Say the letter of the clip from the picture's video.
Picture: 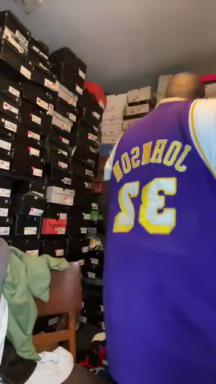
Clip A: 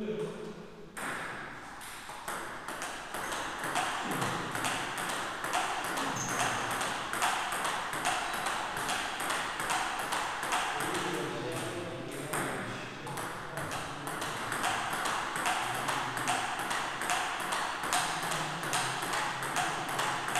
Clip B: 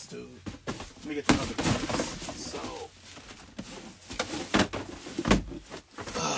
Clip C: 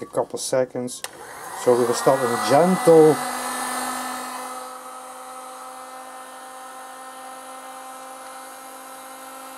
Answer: B